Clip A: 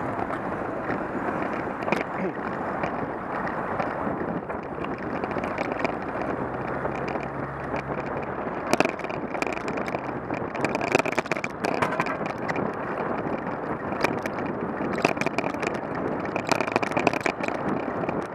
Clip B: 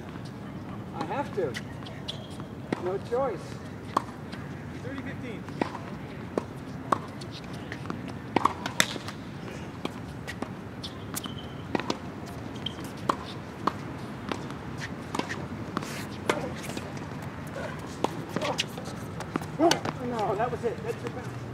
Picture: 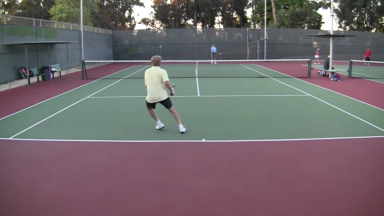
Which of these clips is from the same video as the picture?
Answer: B